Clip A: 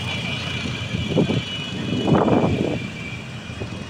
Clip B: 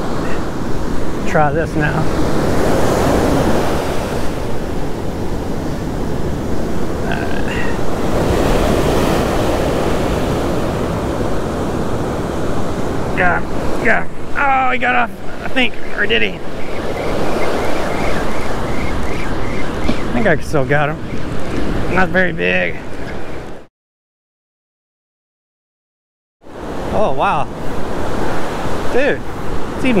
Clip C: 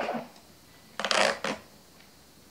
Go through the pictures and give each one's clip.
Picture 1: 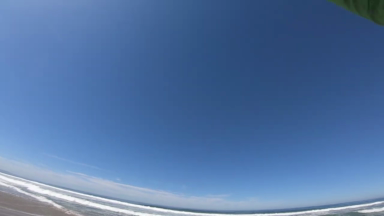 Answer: B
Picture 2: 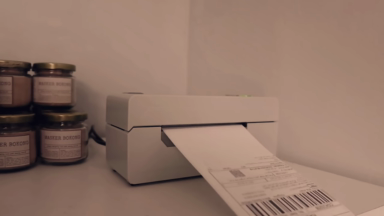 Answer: C